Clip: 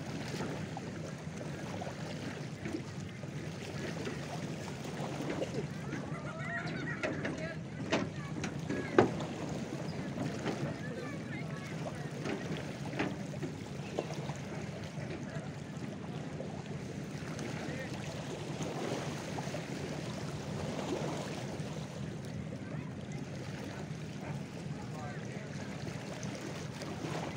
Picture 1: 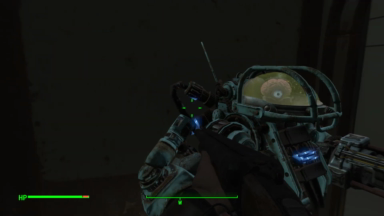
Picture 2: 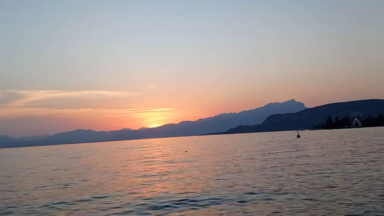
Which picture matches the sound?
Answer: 2